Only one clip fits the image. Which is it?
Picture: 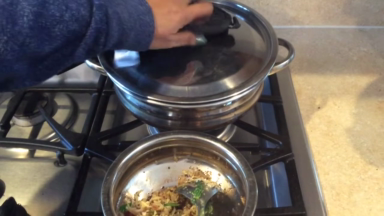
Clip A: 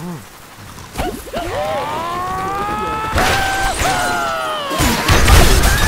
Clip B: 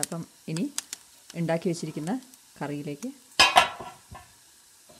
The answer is B